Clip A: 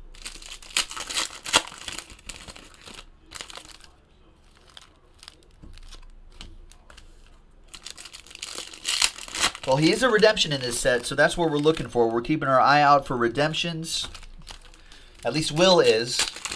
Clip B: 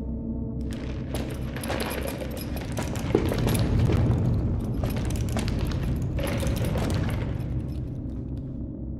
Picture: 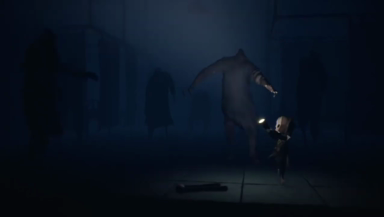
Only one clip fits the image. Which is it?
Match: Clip B